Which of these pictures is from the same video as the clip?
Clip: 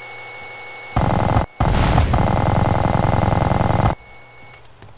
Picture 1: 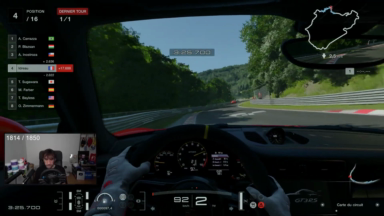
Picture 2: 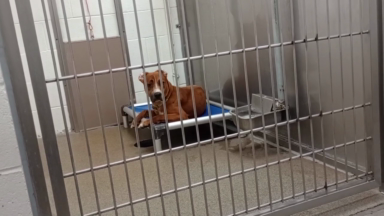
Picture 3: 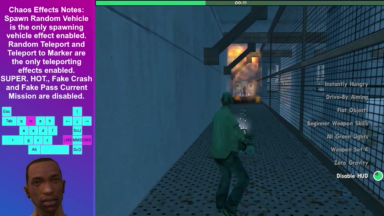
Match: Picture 3